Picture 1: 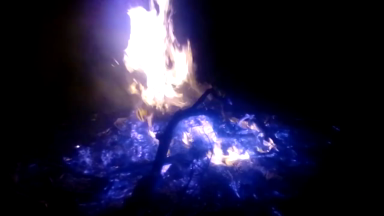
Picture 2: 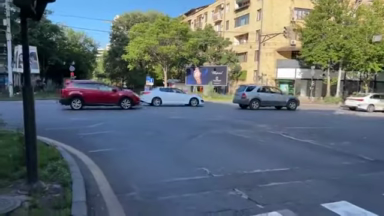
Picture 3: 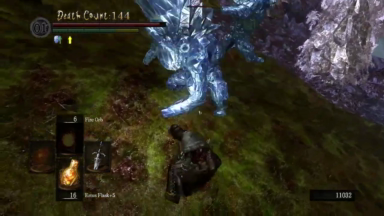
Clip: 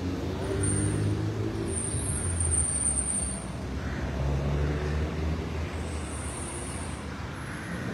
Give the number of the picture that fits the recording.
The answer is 2